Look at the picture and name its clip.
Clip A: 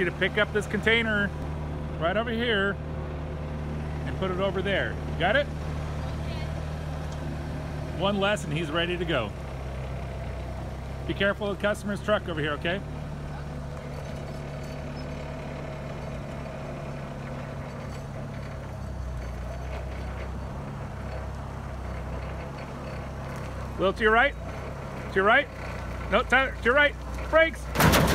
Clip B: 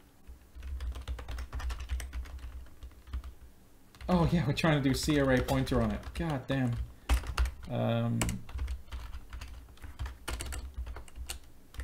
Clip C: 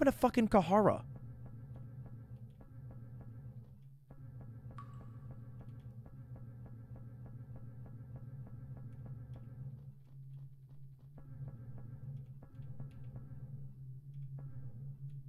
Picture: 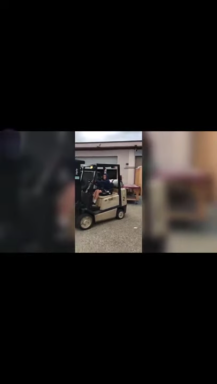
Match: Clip A